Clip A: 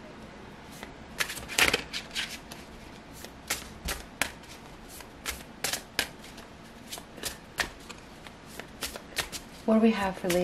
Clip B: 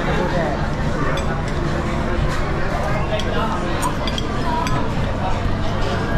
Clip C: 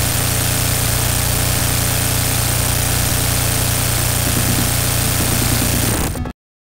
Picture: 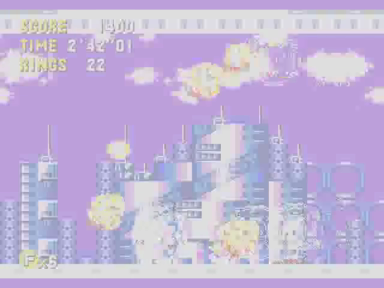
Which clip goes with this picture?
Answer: C